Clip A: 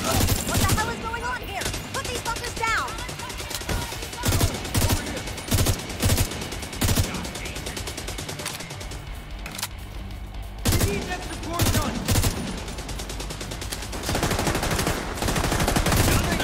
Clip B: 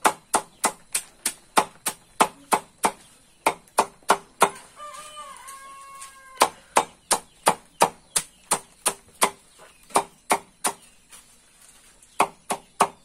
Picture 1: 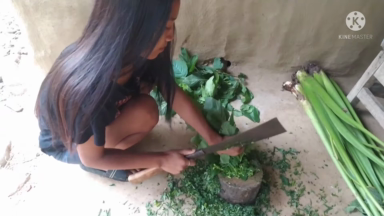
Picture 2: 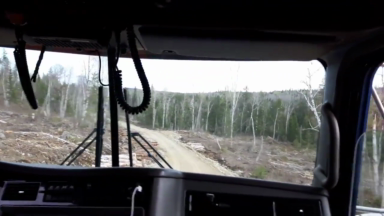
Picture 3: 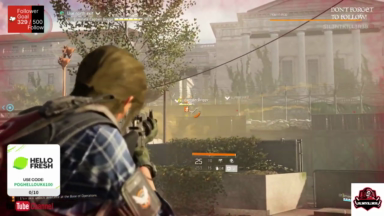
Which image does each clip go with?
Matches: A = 3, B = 1